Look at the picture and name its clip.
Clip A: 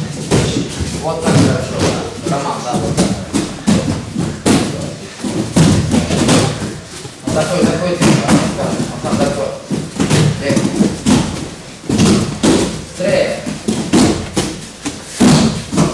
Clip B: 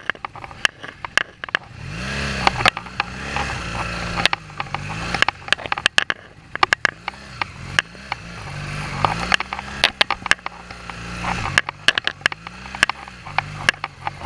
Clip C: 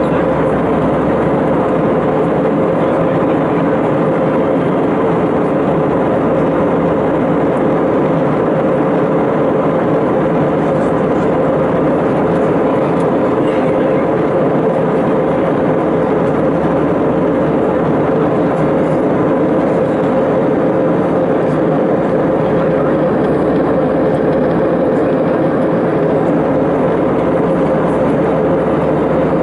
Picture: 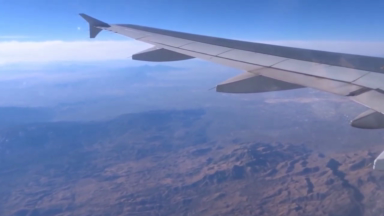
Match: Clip C